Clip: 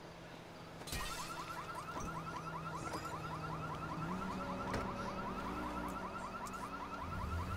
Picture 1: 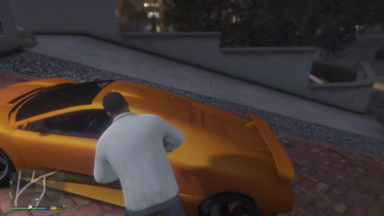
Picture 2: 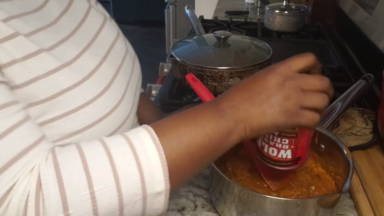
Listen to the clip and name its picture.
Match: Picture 1